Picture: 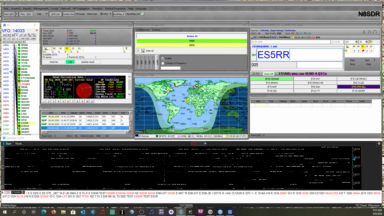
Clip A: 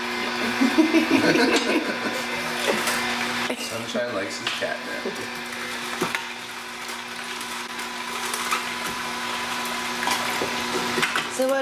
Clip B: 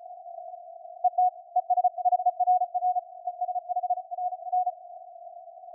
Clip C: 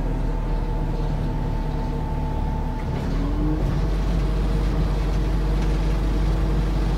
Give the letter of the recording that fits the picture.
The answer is B